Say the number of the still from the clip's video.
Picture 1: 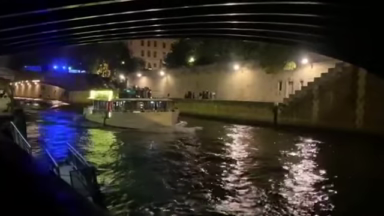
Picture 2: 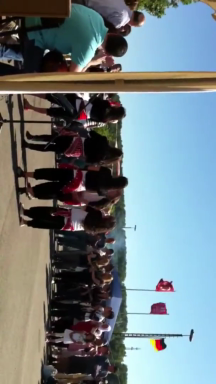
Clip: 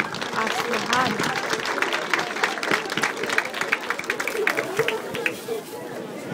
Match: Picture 2